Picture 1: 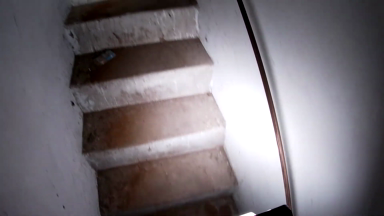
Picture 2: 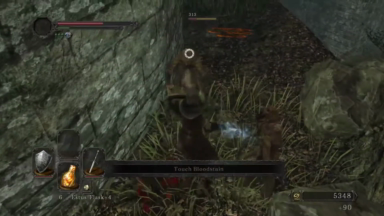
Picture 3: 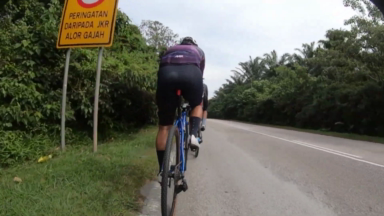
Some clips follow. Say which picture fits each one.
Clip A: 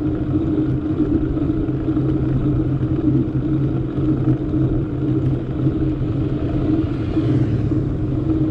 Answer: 3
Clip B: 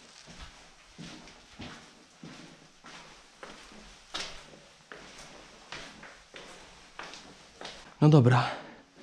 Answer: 1